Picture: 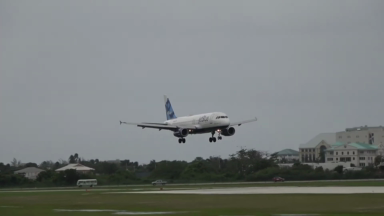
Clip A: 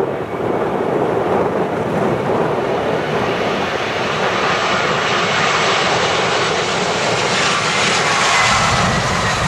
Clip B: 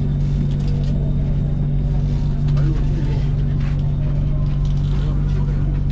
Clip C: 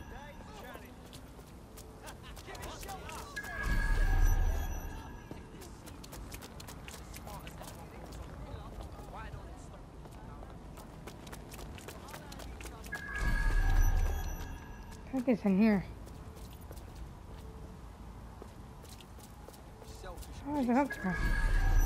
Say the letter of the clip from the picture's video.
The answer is A